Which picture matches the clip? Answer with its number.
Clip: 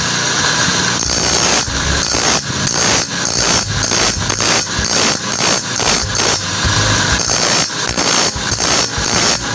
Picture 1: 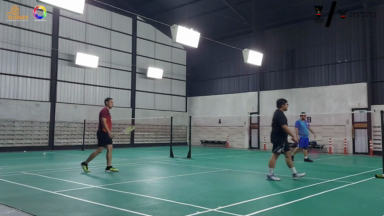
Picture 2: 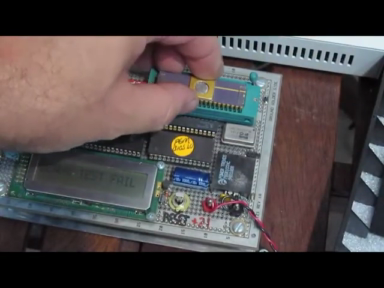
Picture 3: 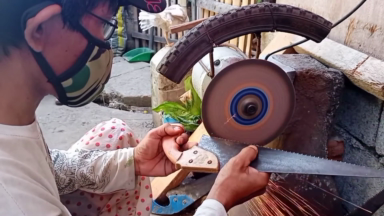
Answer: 3